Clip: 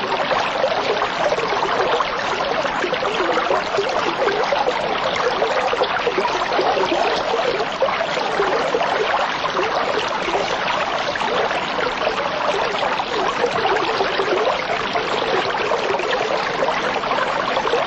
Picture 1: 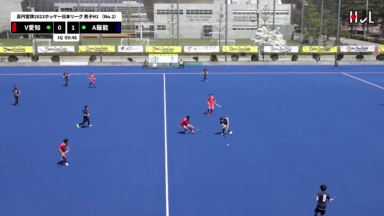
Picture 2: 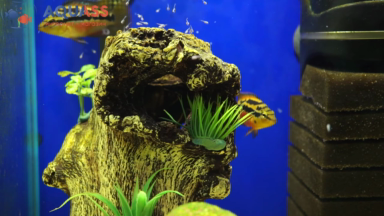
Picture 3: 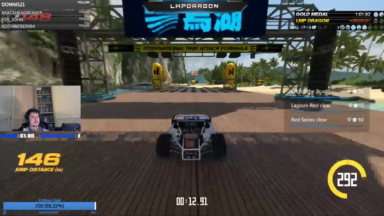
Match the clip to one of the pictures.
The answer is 2